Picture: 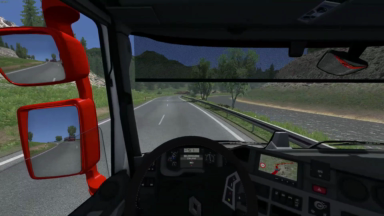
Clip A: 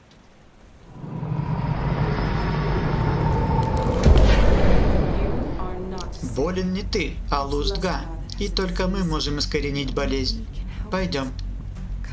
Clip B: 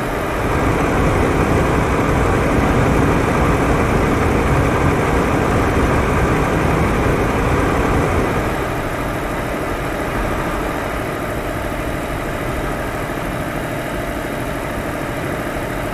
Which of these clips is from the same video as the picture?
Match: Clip B